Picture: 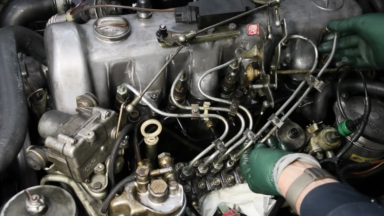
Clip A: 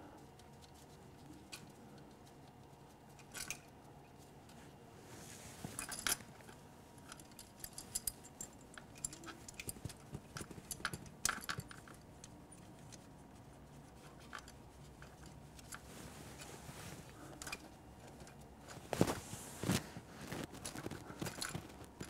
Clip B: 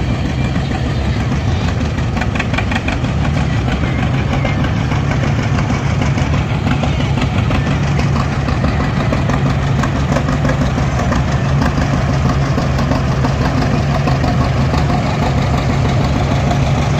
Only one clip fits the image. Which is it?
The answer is A